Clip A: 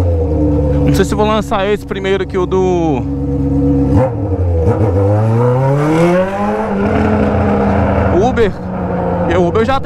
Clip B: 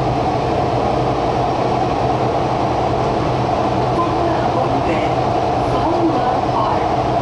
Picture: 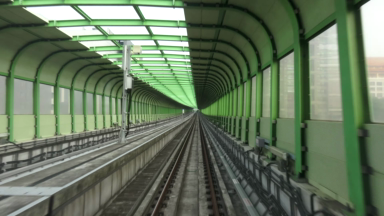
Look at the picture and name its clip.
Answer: B